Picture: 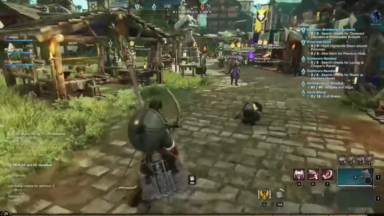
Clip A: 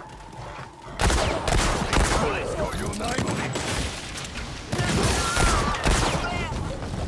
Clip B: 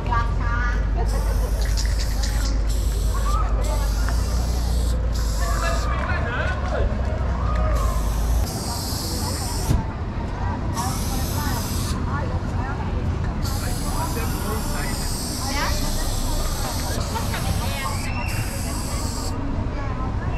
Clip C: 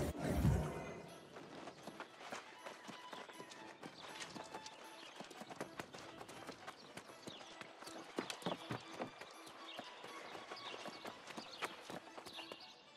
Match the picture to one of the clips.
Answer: C